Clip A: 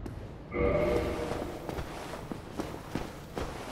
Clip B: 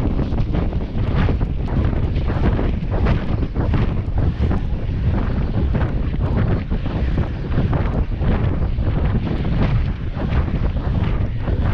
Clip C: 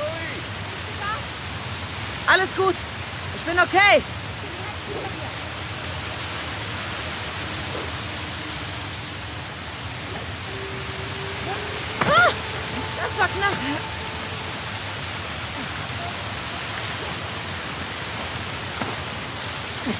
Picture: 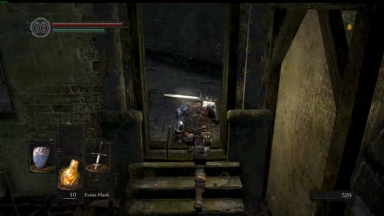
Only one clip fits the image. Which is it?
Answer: A